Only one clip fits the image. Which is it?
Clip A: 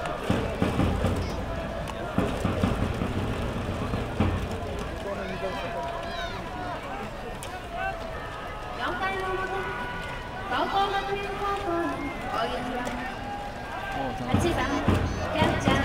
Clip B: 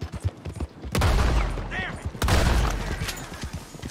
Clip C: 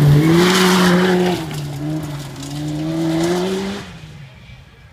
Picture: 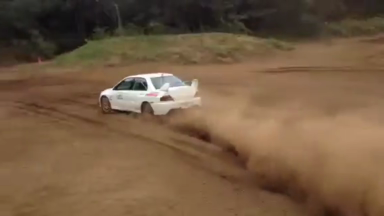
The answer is C